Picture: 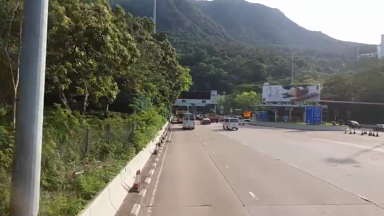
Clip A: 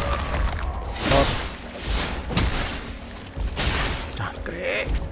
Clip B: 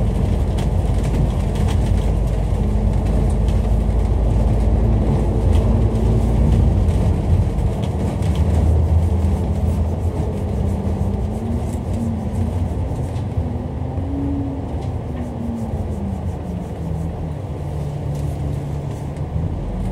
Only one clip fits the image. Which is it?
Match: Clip B